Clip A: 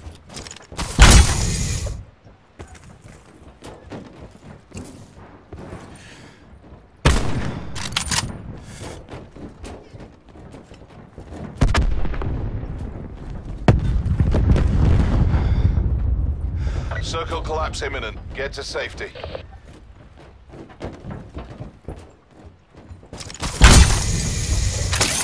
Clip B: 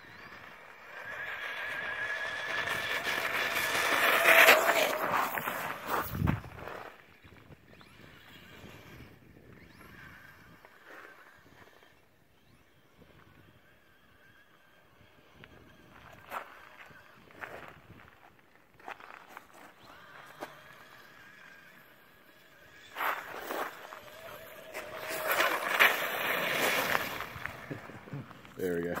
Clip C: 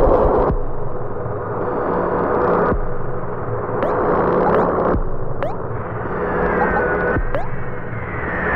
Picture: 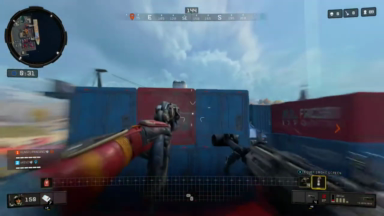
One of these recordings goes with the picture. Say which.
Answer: A